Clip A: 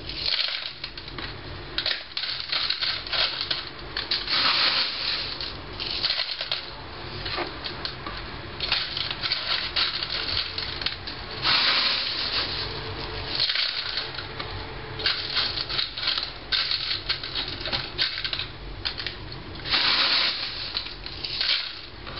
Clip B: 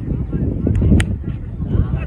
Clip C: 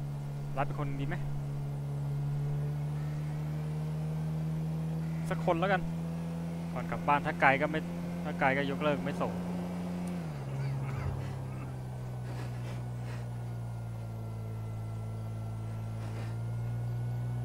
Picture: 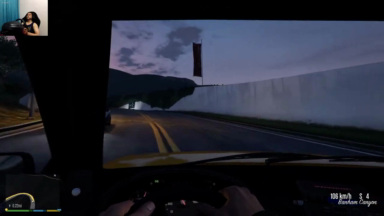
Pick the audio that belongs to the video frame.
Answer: C